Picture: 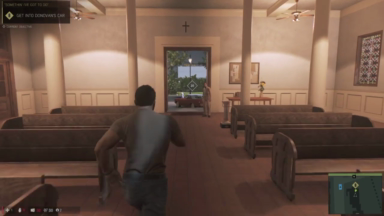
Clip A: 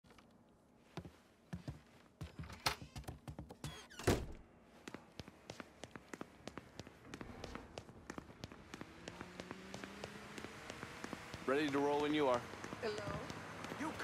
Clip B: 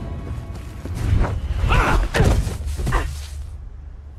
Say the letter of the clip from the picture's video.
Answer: A